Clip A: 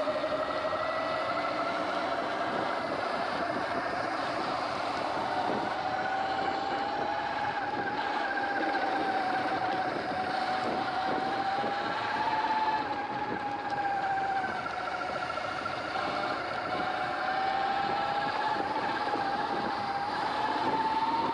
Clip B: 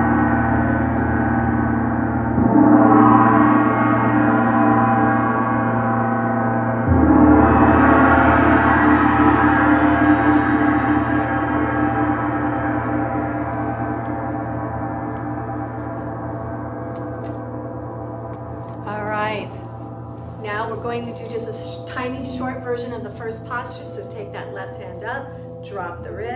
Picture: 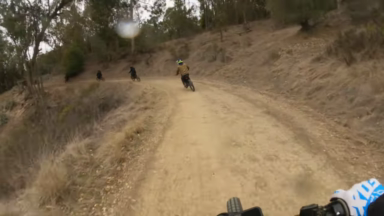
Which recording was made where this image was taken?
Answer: A